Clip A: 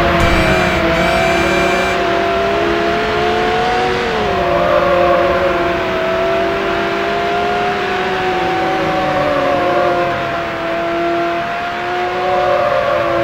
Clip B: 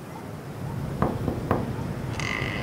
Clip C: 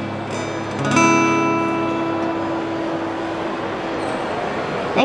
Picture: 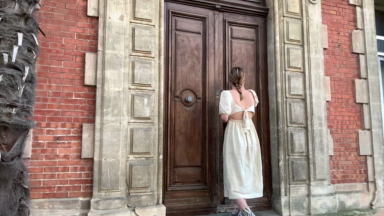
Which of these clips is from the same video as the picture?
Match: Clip B